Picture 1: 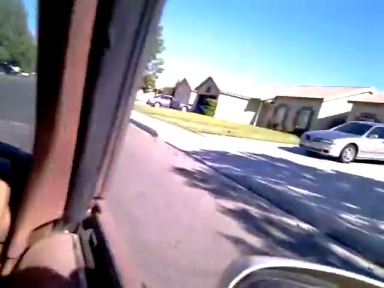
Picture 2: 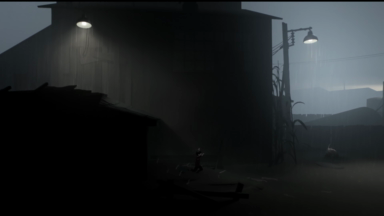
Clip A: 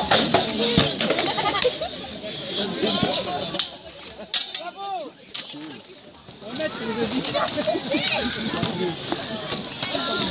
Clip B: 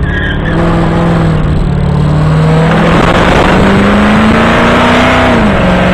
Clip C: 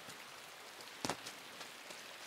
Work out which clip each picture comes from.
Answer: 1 B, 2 C